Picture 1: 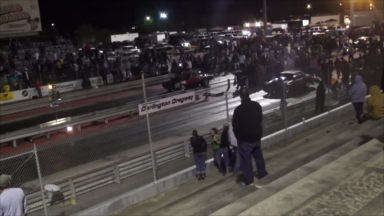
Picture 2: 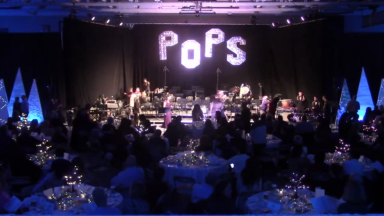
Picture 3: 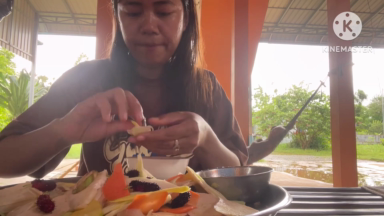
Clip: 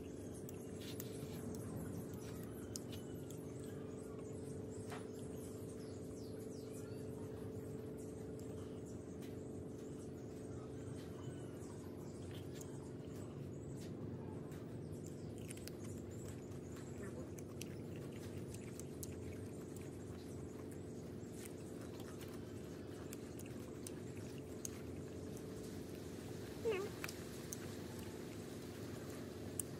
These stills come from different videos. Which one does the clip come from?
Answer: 3